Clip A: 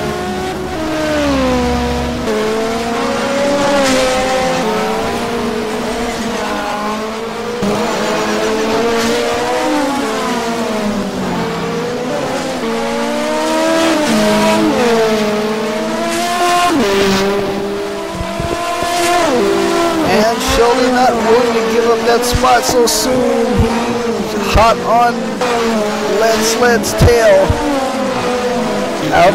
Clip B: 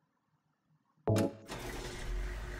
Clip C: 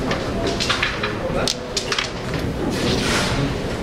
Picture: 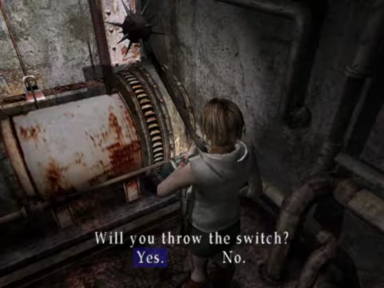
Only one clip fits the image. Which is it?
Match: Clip B